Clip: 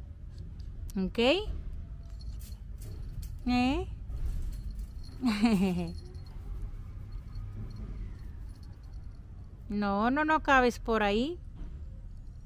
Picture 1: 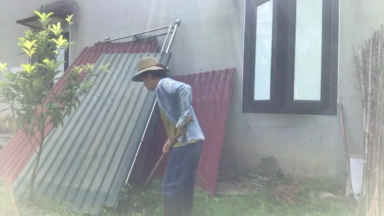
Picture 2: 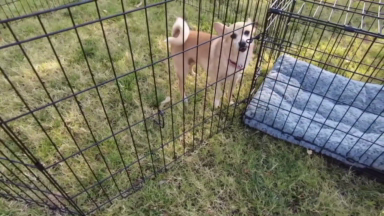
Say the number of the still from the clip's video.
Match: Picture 2